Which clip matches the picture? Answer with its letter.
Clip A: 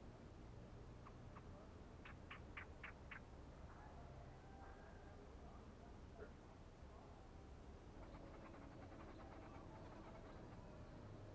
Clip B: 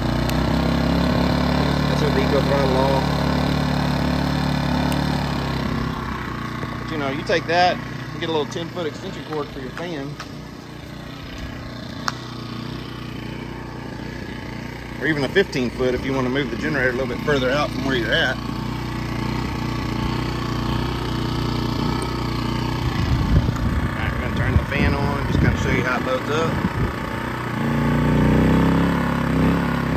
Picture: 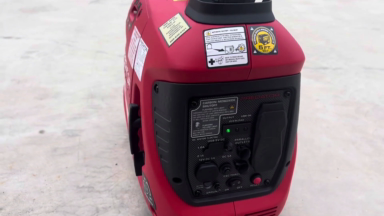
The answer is B